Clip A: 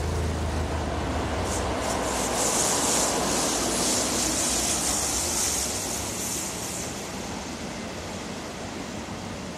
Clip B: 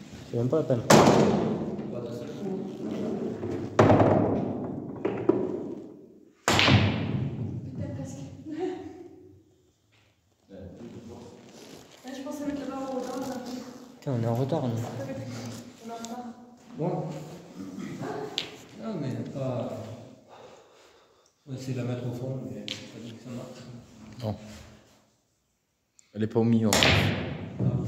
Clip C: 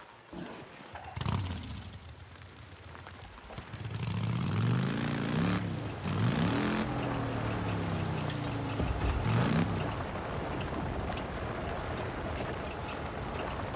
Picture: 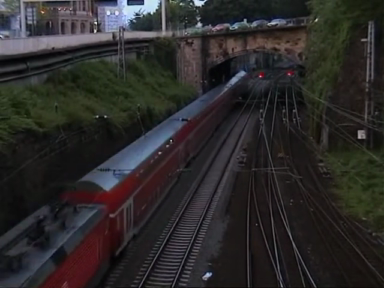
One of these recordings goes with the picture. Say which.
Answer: A